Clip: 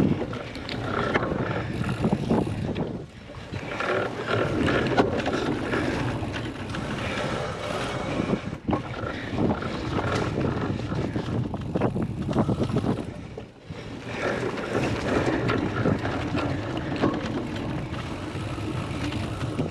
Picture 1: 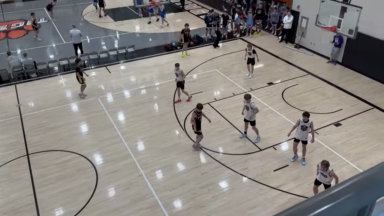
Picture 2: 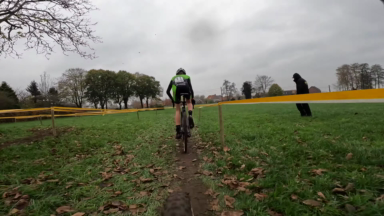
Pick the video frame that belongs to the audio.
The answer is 2